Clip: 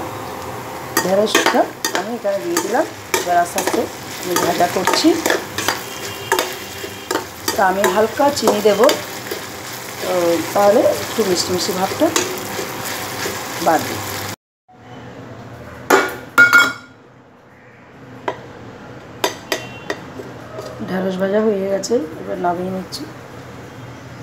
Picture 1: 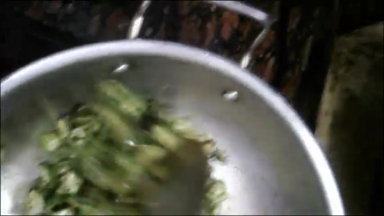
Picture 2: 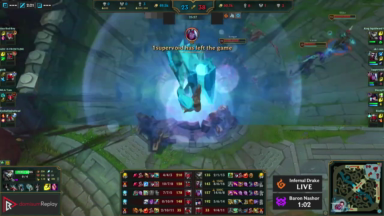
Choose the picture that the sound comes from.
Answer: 1